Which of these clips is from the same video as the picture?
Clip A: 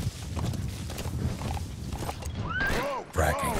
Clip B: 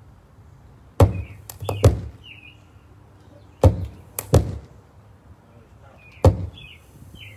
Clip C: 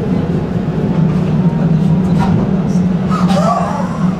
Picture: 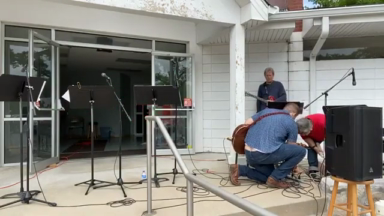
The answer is B